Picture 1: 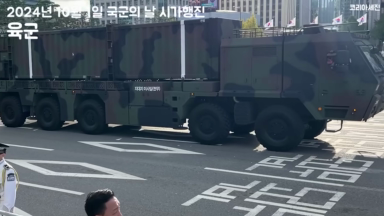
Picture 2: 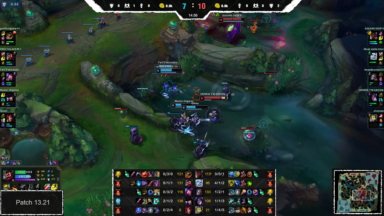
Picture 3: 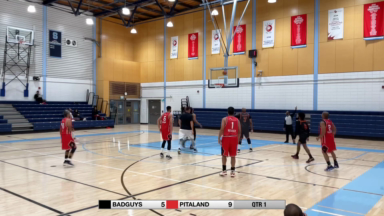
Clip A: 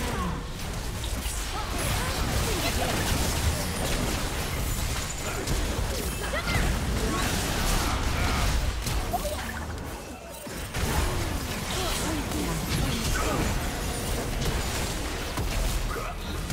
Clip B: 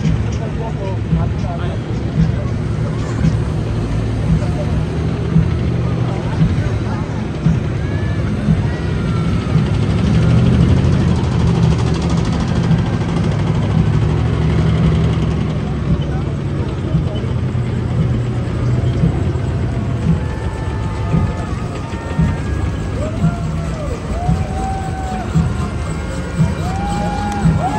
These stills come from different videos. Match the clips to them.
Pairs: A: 2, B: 1